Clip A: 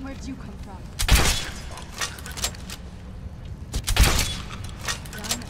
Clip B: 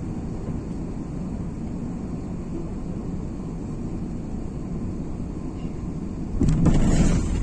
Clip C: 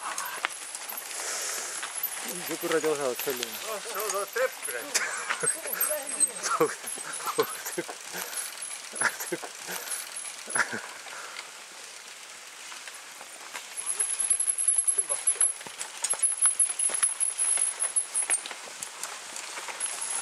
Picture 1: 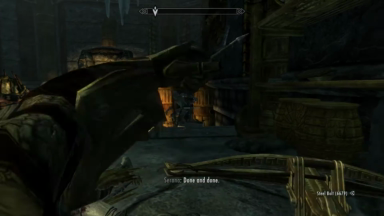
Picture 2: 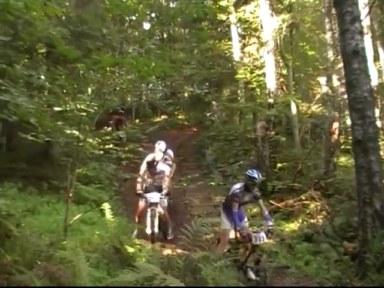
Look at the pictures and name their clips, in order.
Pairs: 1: A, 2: C